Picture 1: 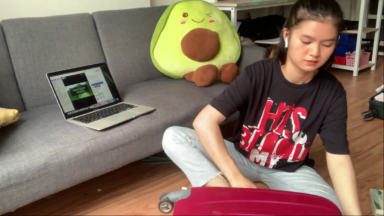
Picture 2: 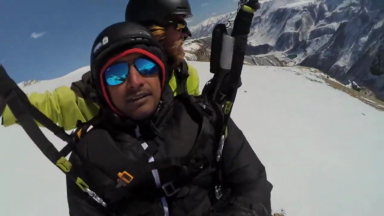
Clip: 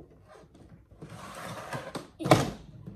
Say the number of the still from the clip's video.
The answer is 1